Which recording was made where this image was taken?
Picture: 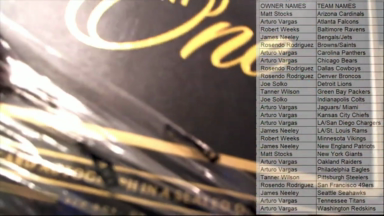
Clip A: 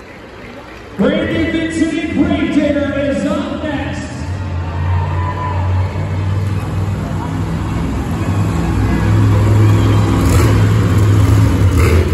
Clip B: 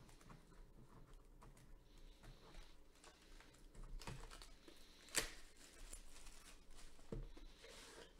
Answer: B